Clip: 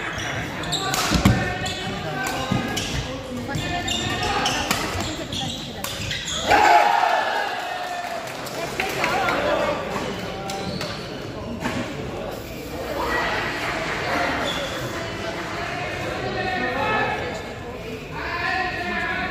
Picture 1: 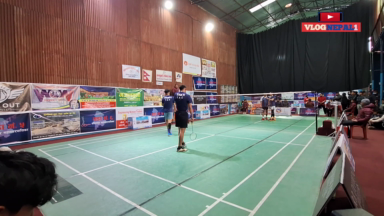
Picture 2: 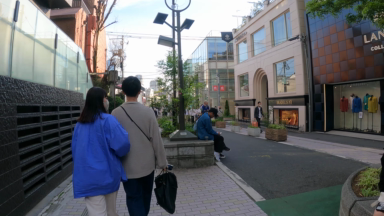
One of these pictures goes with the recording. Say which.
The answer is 1